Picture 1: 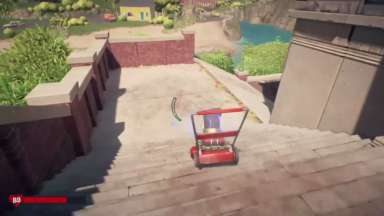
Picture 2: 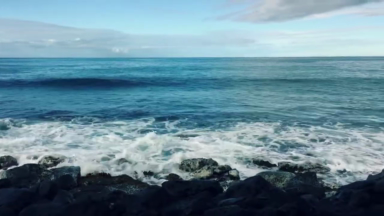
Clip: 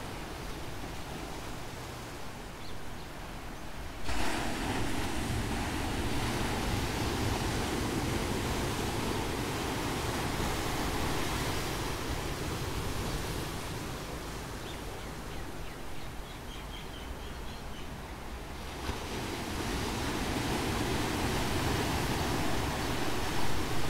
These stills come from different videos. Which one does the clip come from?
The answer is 2